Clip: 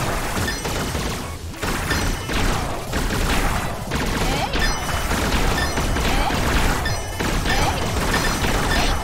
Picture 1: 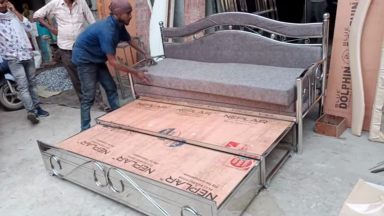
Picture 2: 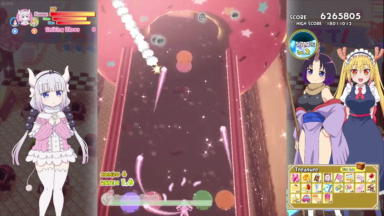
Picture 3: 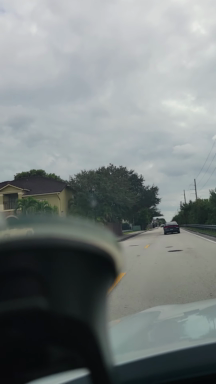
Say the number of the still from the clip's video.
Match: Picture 2